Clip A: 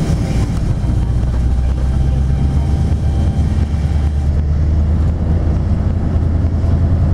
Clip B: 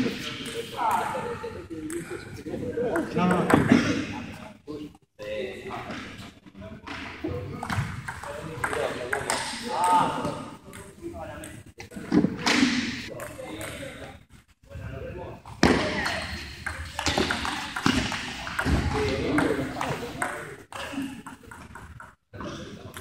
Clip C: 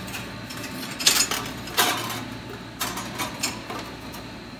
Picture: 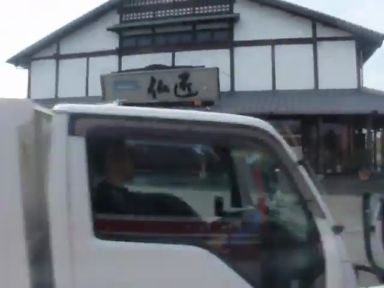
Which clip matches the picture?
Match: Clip A